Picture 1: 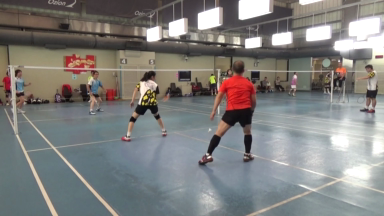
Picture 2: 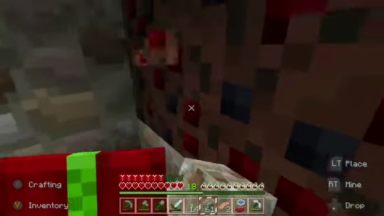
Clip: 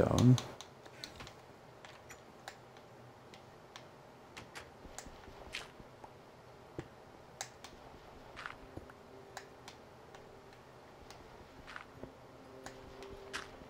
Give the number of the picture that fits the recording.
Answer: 2